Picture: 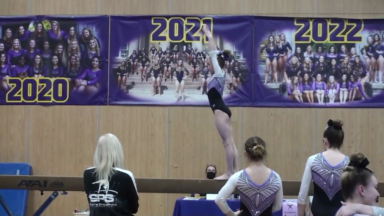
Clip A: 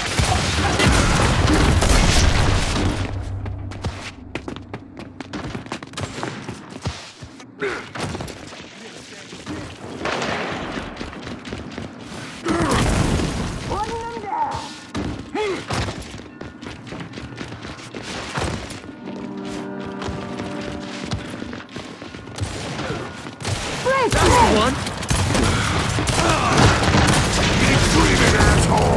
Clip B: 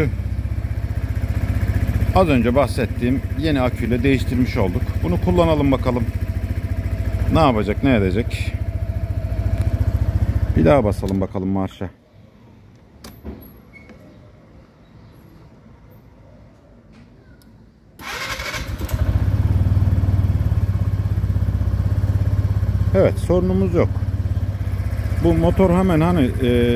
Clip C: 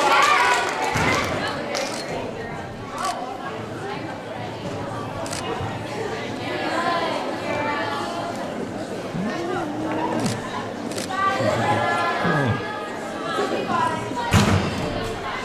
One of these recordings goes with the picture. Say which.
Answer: C